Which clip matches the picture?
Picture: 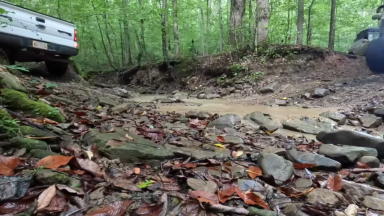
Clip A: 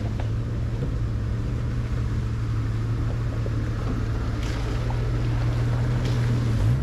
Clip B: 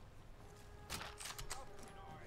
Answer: A